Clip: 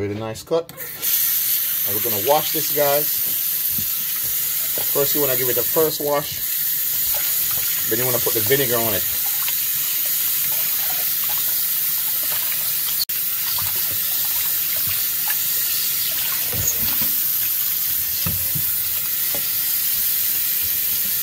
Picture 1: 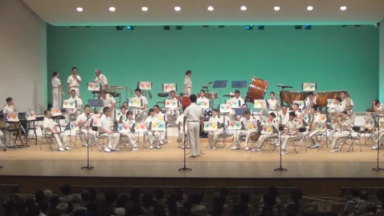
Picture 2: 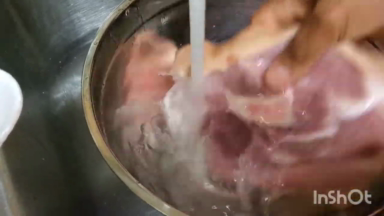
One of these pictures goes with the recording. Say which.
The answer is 2